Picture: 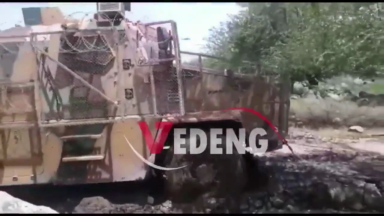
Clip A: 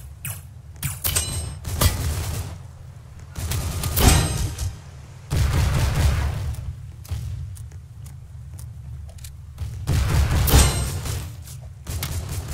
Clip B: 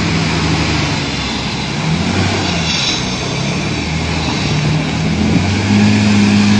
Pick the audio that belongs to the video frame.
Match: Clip B